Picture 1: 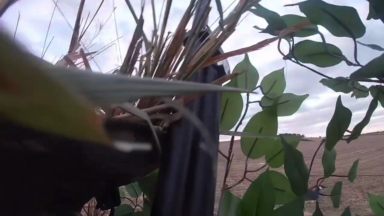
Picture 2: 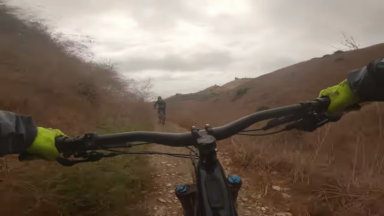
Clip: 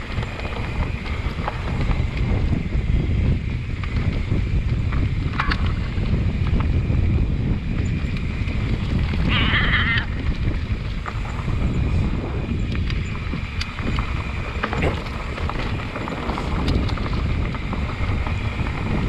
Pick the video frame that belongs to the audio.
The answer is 2